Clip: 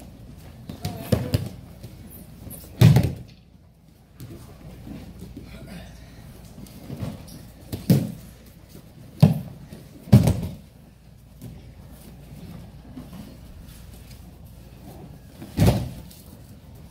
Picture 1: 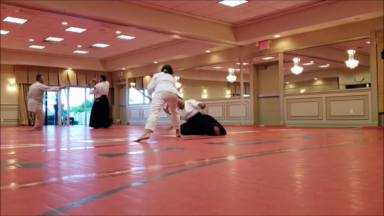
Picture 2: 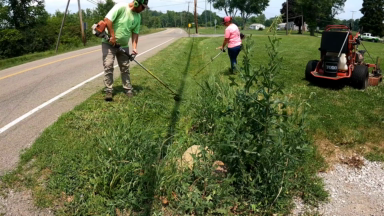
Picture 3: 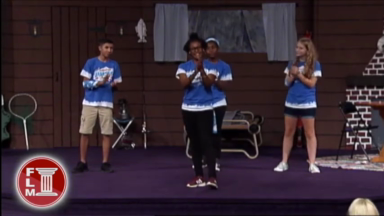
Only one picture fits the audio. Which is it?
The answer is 1